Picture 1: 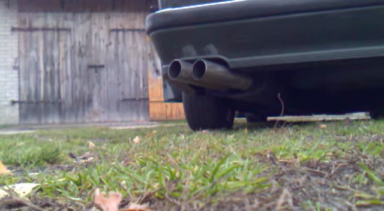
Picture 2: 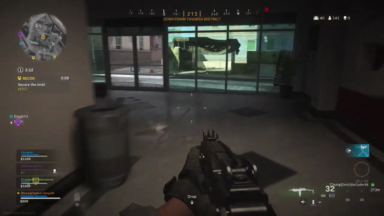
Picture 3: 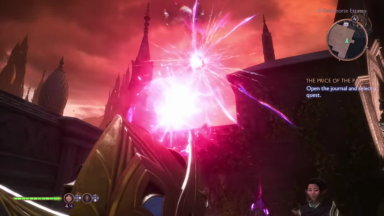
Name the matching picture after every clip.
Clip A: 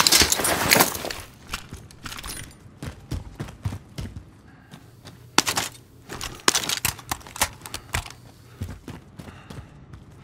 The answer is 2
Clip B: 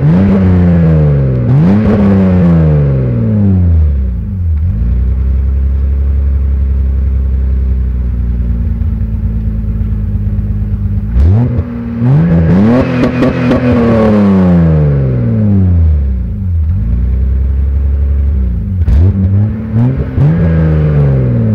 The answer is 1